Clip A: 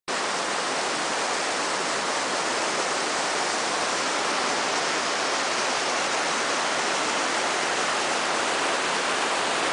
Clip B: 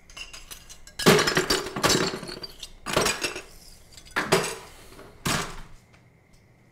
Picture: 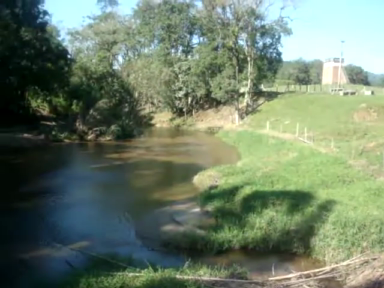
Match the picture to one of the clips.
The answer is A